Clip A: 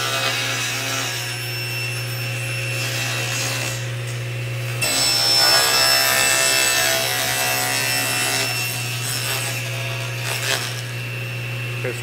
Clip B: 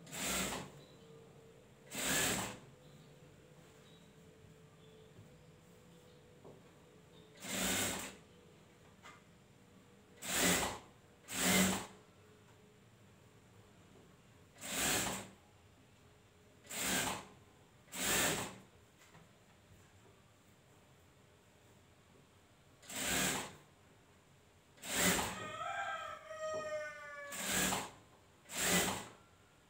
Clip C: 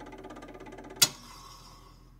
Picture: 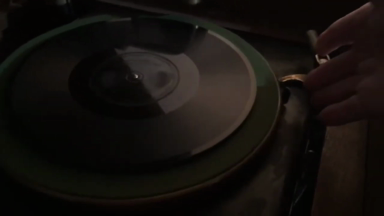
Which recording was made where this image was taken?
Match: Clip C